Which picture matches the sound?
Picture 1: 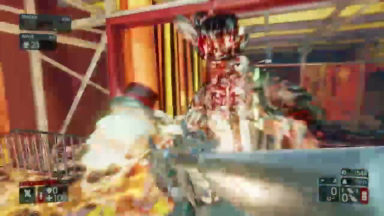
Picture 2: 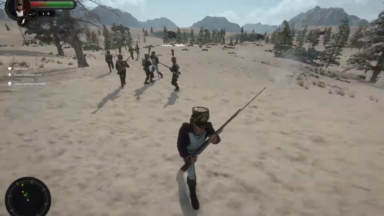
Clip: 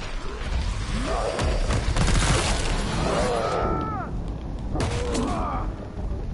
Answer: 1